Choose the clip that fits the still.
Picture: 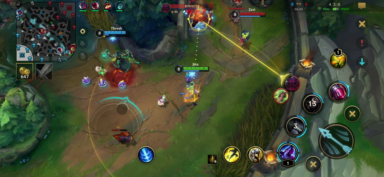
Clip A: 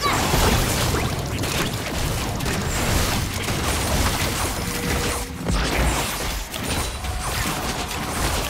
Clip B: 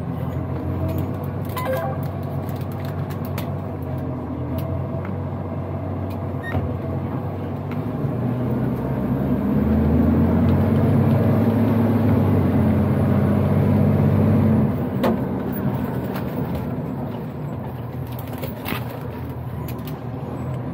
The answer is A